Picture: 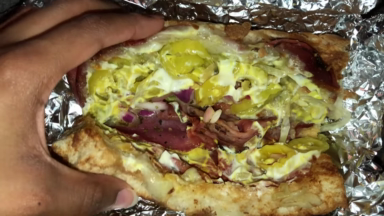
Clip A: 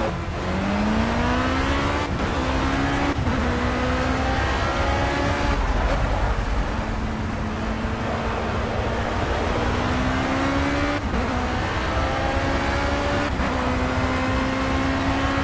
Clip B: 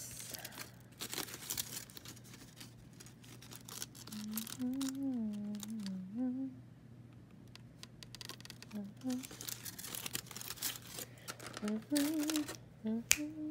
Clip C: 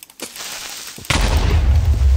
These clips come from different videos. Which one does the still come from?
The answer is B